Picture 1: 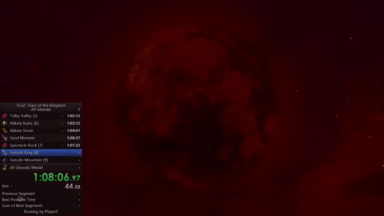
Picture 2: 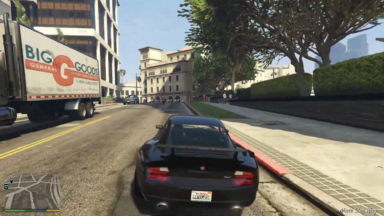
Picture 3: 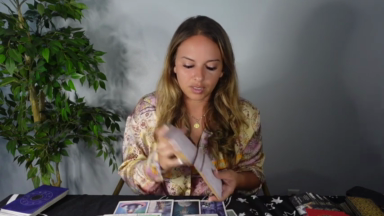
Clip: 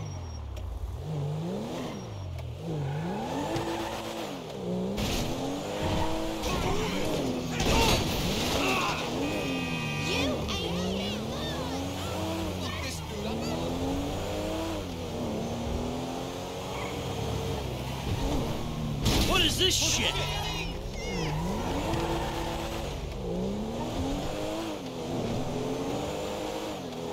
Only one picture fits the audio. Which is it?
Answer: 2